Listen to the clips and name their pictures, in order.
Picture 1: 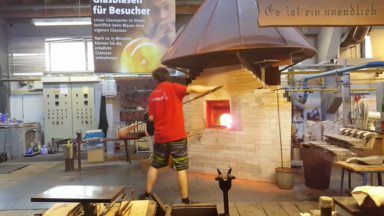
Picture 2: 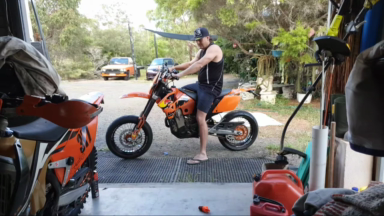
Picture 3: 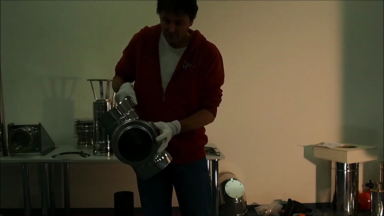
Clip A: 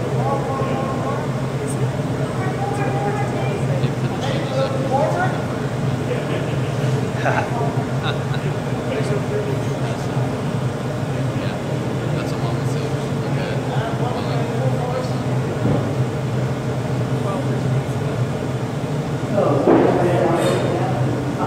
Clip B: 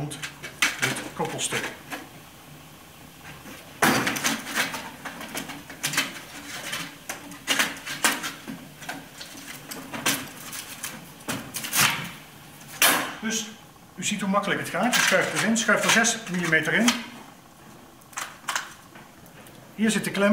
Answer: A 1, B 3